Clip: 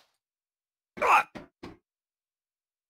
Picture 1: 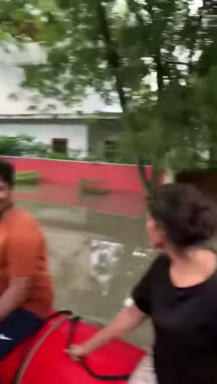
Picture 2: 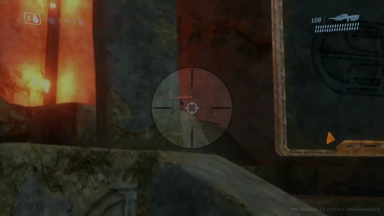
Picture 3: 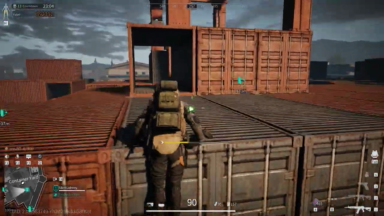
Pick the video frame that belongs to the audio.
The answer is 3